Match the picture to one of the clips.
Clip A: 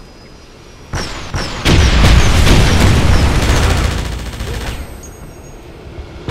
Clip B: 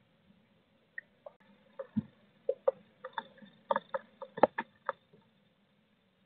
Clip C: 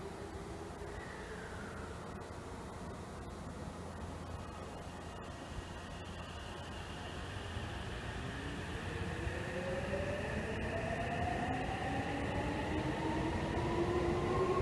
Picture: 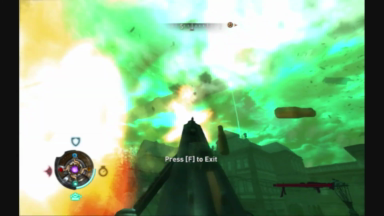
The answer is A